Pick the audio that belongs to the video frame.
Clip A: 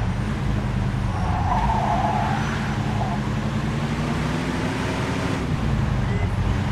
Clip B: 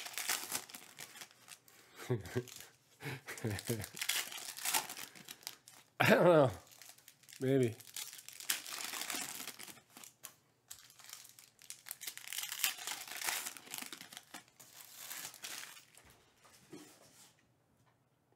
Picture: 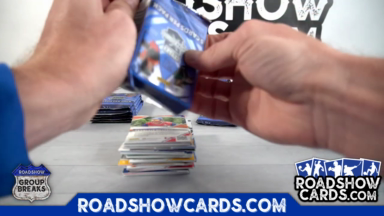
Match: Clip B